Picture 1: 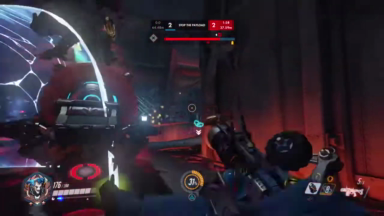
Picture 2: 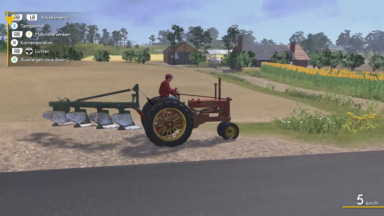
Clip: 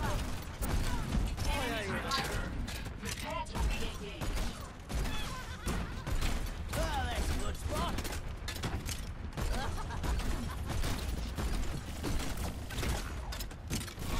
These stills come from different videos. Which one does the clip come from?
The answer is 1